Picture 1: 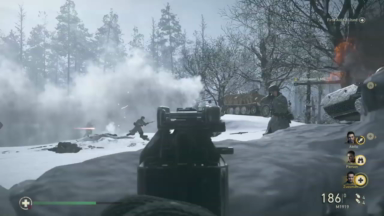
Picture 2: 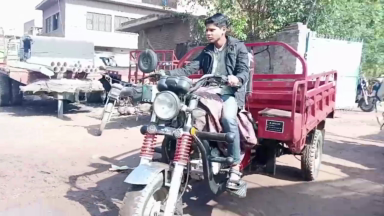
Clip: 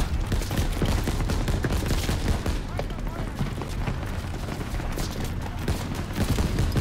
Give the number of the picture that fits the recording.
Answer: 1